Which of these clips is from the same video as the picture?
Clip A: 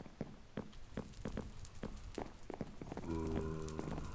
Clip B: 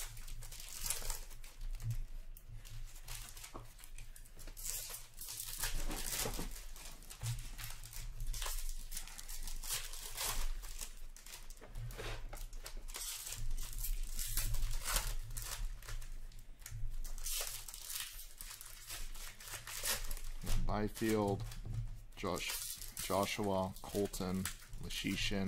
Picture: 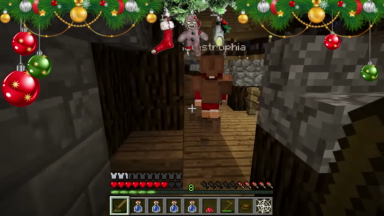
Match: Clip A